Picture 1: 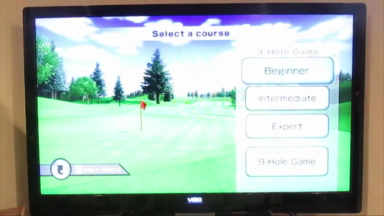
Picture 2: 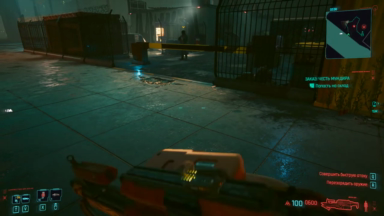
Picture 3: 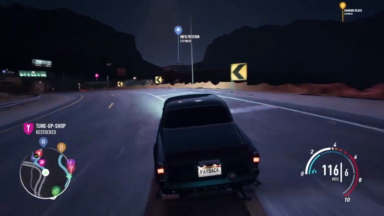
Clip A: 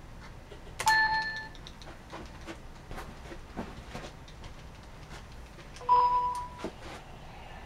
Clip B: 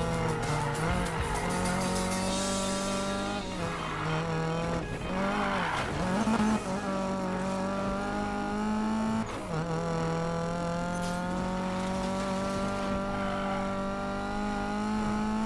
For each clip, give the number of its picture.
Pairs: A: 1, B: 3